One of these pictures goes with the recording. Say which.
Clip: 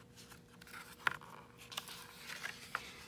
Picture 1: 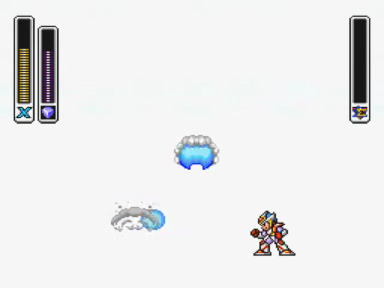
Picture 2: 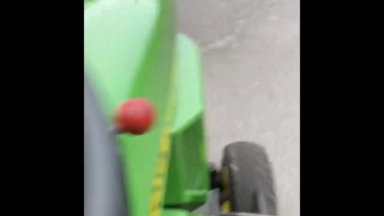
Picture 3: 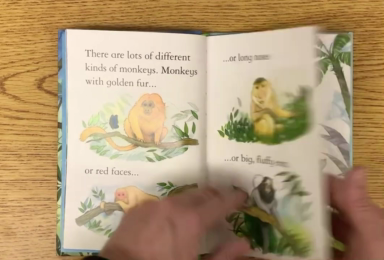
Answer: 3